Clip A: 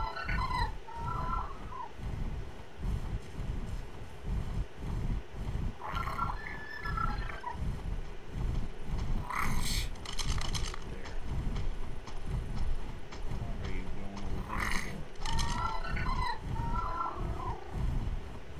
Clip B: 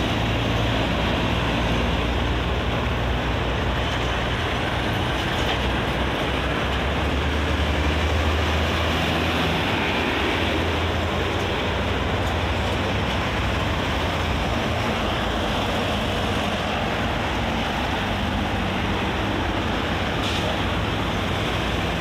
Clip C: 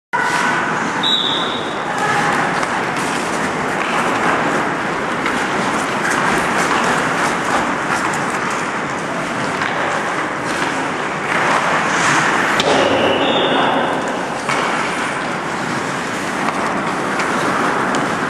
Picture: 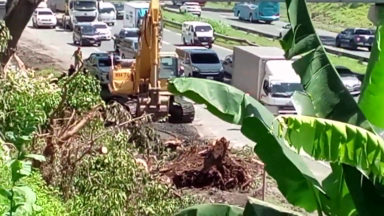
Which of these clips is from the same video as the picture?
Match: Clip B